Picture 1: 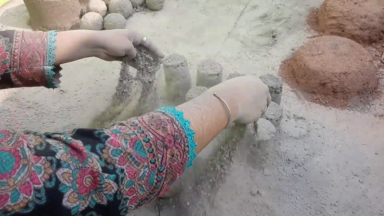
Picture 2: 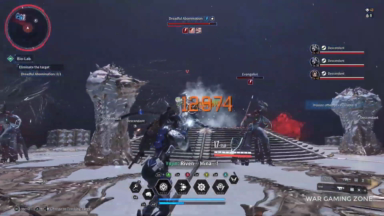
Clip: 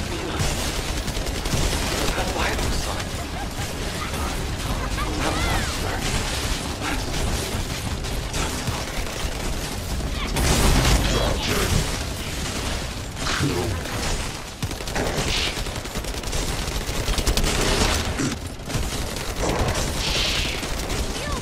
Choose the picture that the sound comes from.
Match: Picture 2